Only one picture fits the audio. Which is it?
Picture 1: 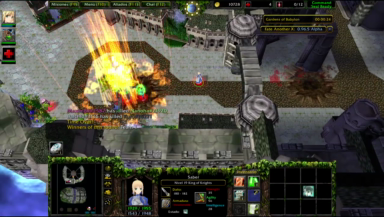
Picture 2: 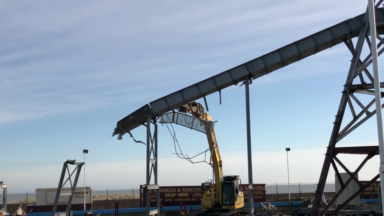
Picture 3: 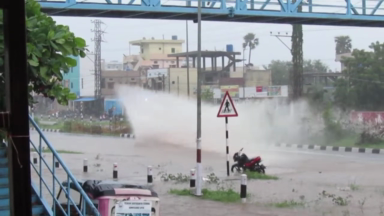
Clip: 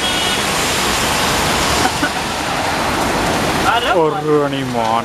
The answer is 3